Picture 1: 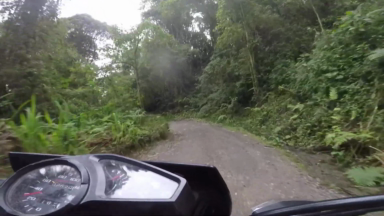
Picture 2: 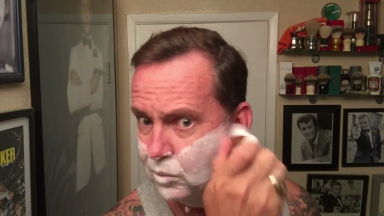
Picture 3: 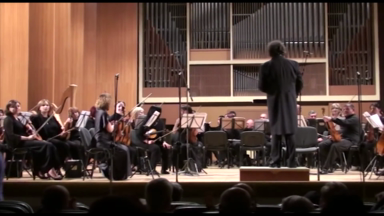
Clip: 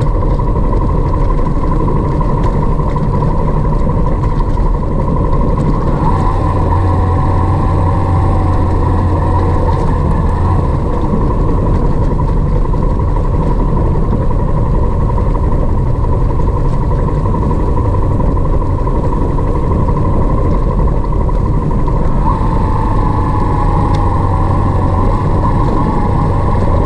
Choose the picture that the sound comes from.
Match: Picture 1